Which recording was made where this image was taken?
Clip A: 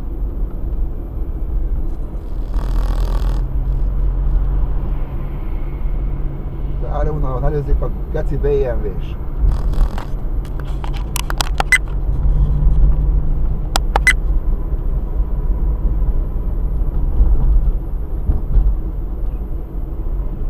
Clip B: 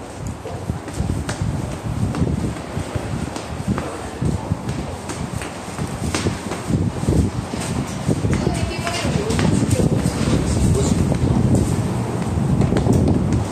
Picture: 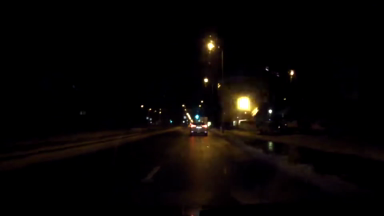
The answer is A